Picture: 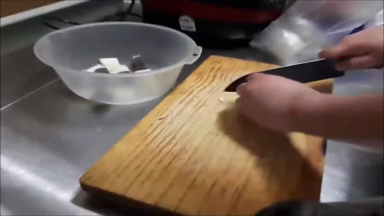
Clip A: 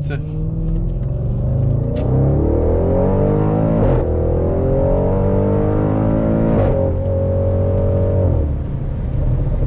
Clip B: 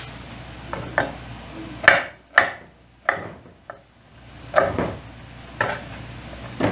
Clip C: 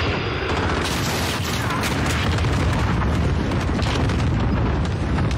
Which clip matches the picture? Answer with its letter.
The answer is B